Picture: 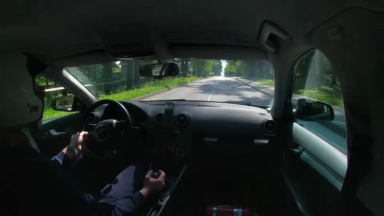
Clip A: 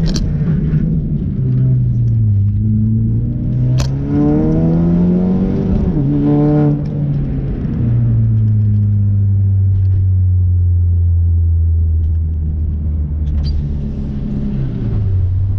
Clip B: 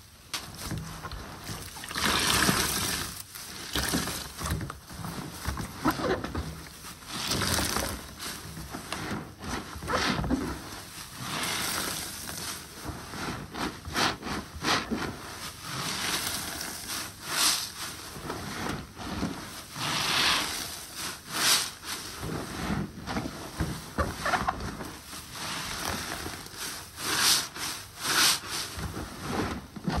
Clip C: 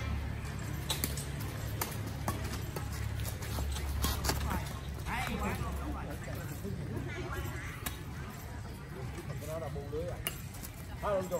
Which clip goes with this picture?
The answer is A